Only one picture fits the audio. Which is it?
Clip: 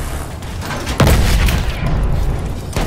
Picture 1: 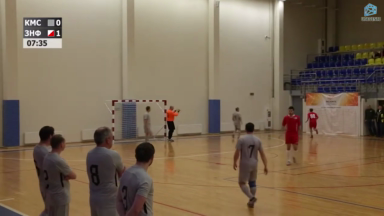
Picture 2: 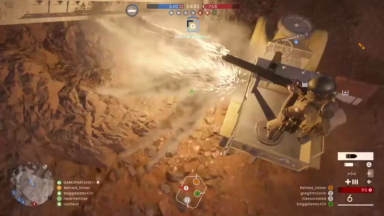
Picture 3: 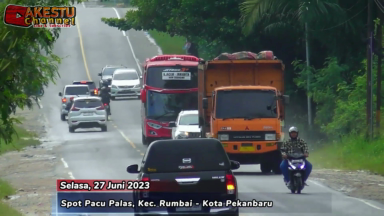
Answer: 2